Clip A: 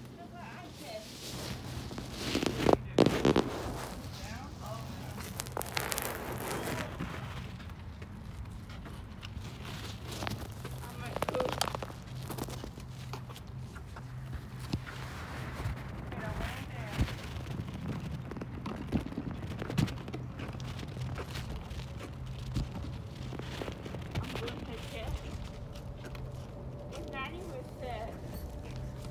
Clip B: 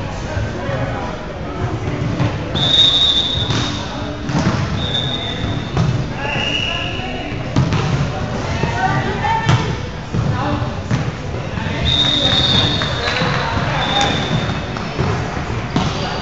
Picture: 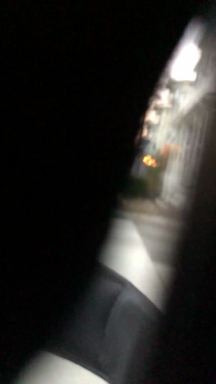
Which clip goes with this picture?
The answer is A